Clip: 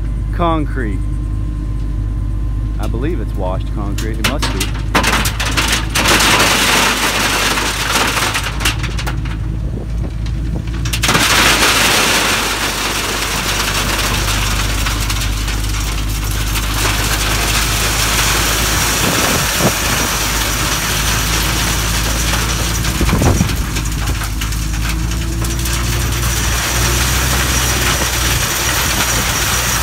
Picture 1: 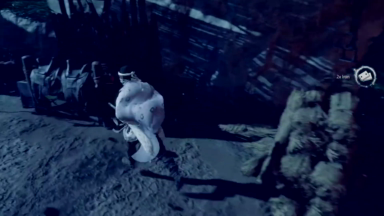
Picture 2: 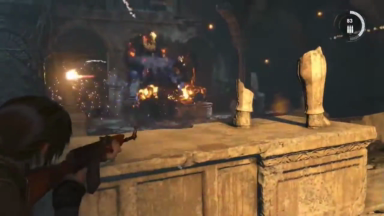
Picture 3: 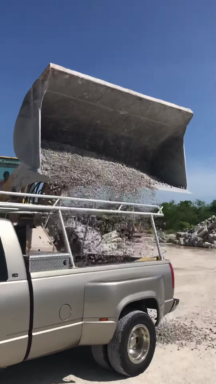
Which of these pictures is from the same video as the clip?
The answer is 3